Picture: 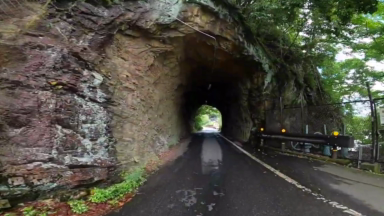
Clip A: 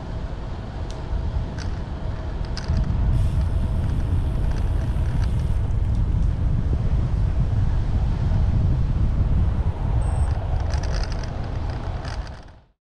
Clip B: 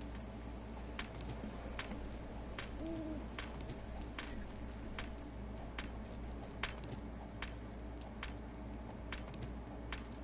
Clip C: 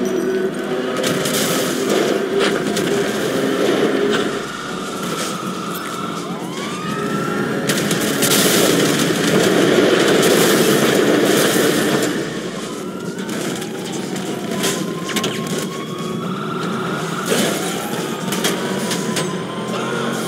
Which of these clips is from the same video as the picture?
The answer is A